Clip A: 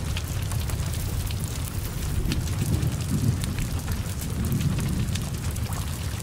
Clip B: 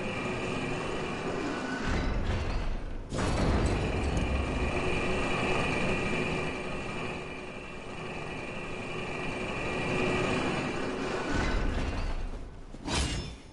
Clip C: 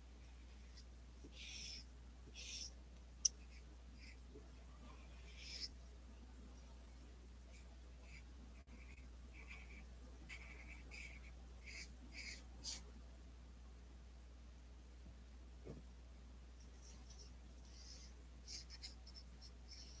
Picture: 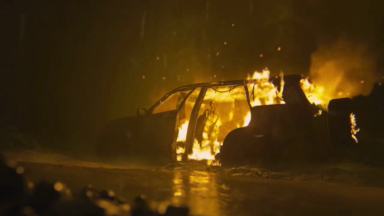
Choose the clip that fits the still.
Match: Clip A